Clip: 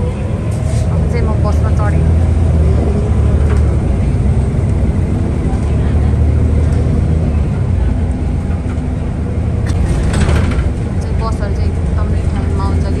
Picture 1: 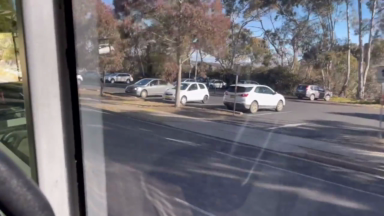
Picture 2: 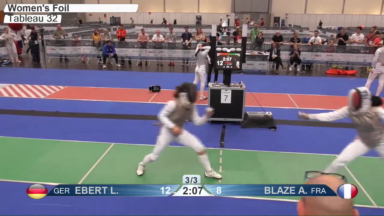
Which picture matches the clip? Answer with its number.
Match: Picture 1